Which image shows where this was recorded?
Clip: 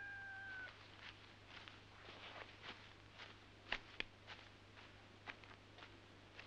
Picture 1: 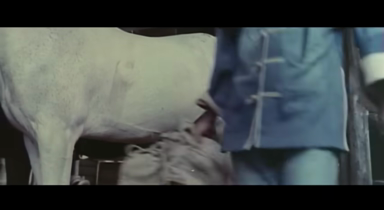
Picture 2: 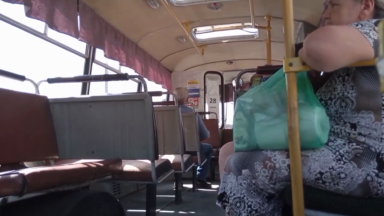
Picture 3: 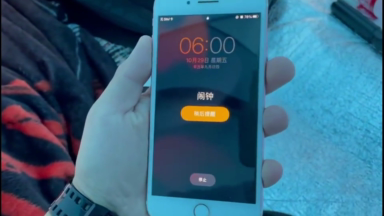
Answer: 1